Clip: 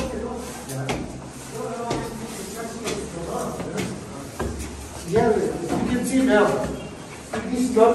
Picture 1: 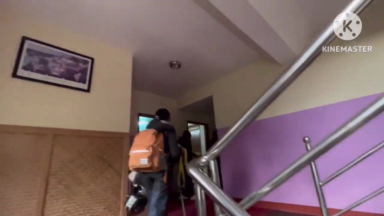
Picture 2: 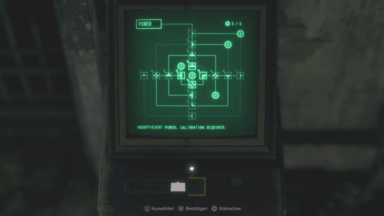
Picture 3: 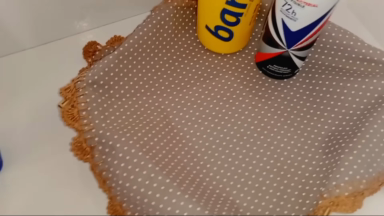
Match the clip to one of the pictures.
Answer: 1